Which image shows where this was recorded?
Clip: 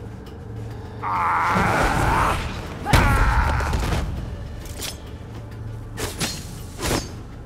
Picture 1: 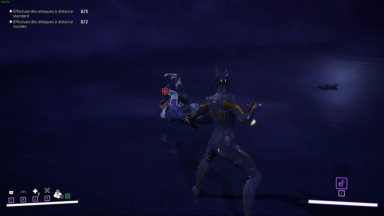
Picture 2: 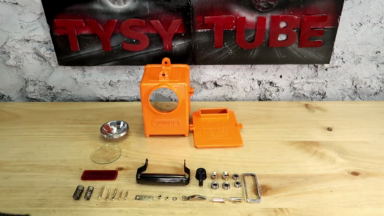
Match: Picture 1